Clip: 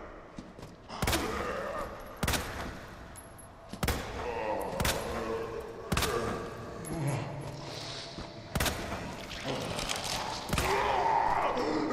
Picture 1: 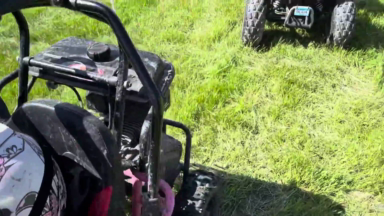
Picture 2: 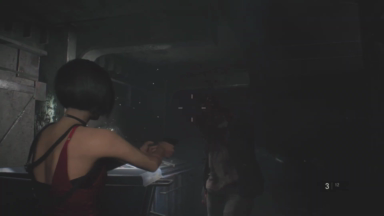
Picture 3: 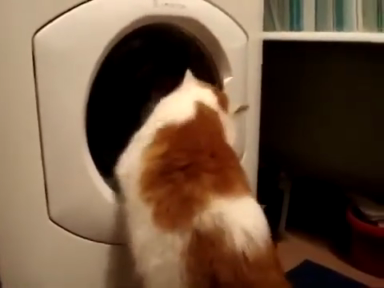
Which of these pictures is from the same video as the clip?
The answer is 2